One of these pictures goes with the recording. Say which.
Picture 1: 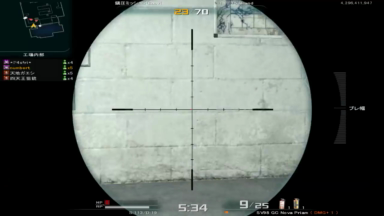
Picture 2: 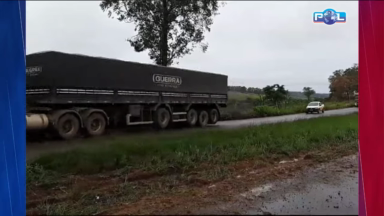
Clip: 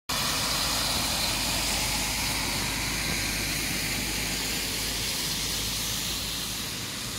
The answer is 2